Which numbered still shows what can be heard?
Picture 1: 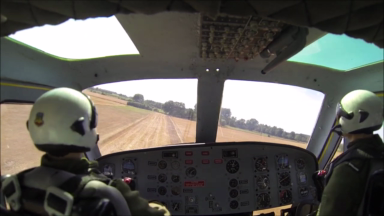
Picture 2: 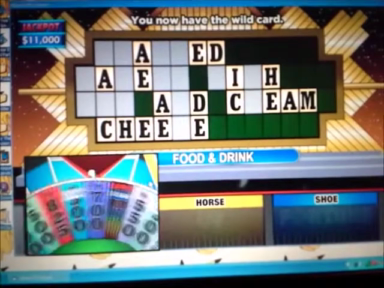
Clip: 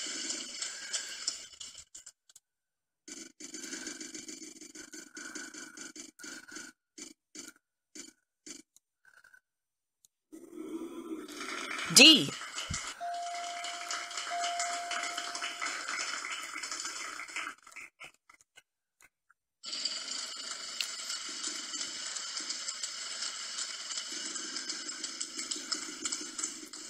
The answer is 2